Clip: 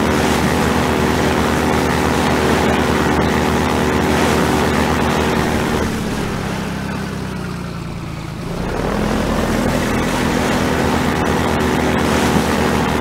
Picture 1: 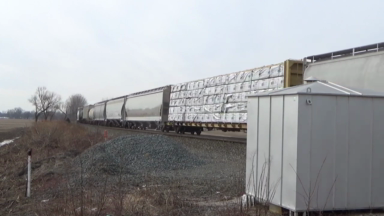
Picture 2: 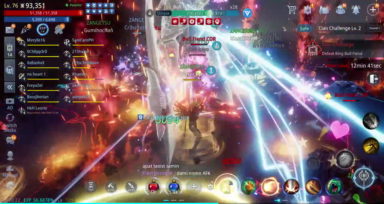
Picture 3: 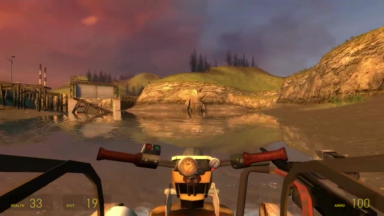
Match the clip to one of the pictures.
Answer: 3